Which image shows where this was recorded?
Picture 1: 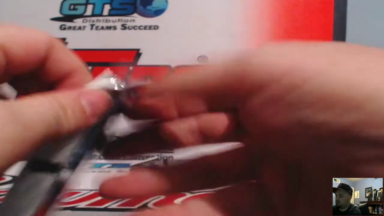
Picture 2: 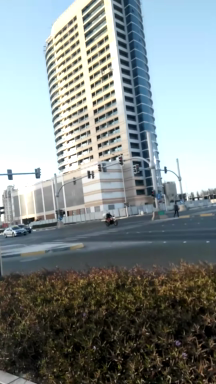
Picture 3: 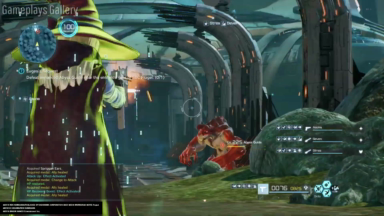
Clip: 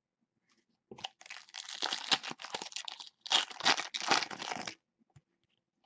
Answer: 1